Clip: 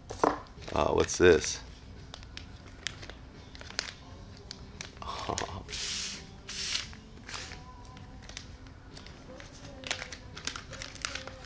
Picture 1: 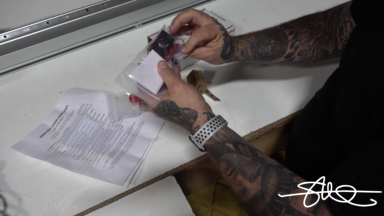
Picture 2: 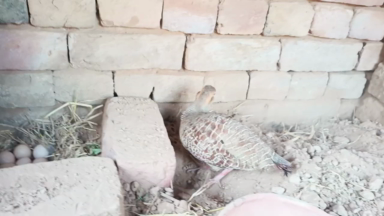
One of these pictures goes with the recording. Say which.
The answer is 1